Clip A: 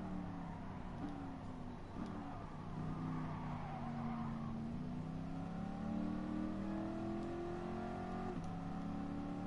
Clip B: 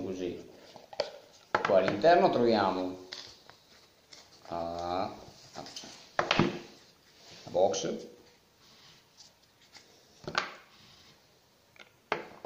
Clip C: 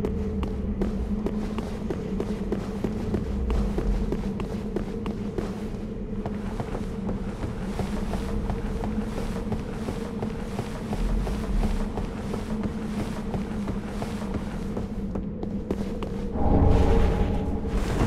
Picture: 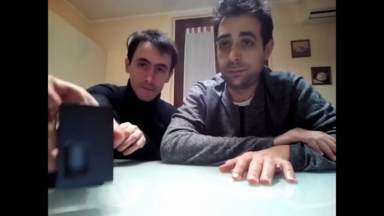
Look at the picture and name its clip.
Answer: B